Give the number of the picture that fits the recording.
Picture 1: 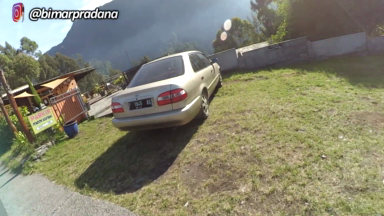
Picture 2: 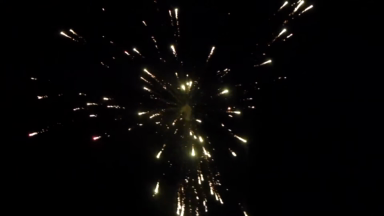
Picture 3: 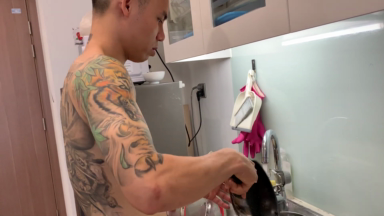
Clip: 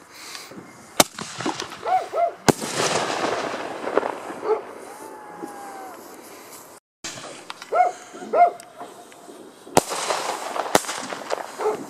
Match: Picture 2